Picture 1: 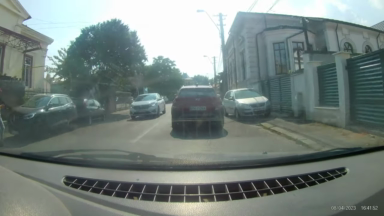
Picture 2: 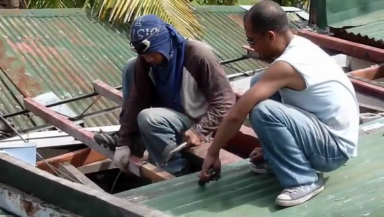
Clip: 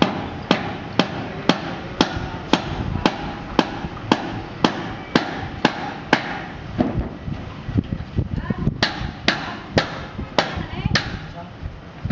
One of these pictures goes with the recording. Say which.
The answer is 2